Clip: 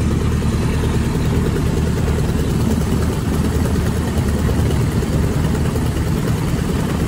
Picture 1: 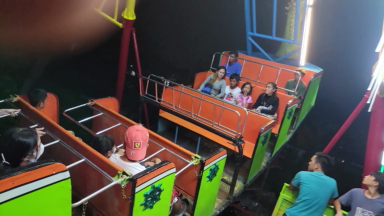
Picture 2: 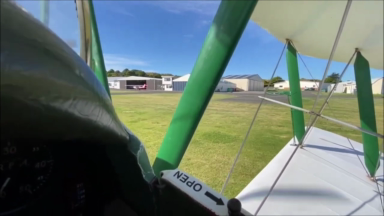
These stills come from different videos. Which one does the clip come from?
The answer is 2